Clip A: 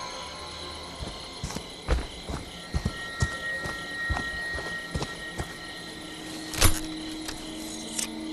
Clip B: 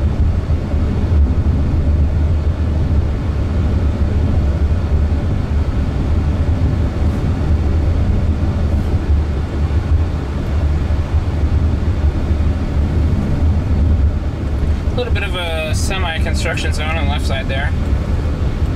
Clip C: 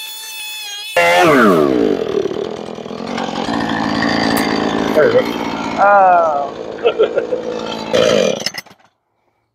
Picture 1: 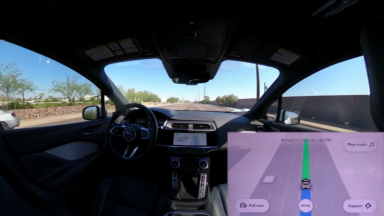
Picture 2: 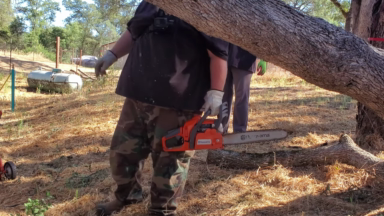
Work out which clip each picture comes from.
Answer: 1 B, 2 C